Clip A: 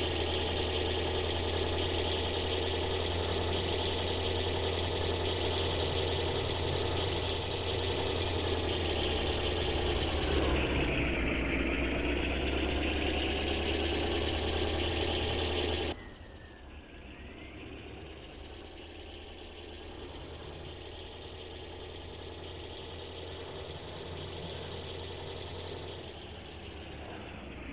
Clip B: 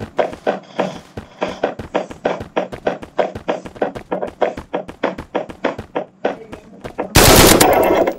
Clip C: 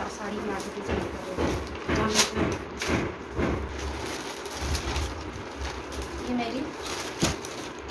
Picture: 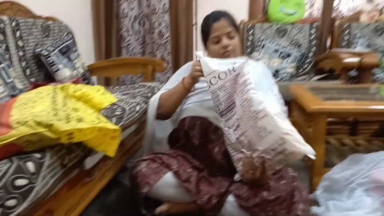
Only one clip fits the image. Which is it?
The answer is C